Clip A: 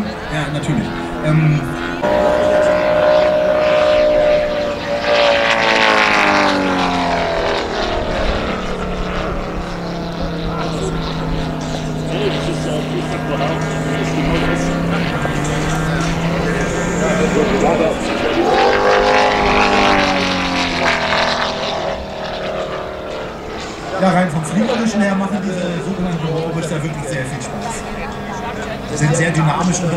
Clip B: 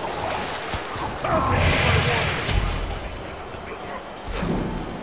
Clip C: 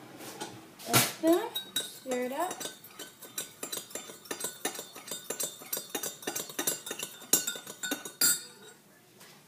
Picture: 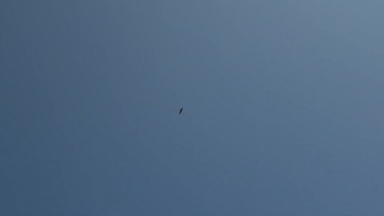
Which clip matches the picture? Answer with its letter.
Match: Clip A